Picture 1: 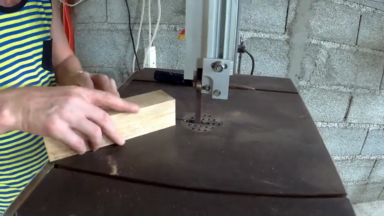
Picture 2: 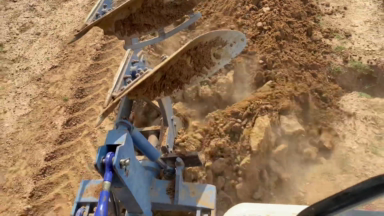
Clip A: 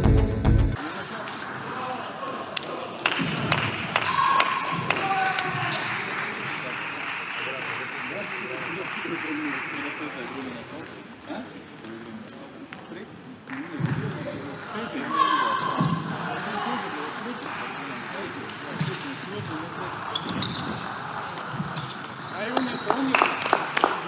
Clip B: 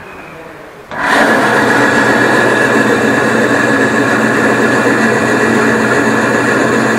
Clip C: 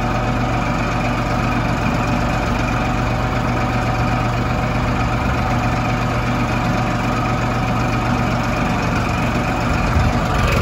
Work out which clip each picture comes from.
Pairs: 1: B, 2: C